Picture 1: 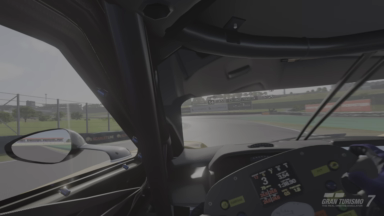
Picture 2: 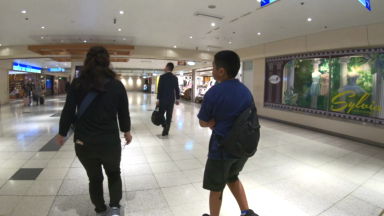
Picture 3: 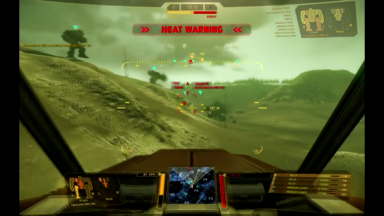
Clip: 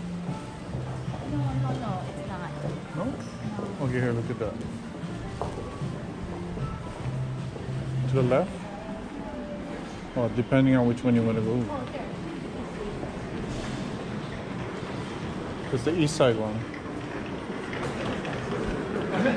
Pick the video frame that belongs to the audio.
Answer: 2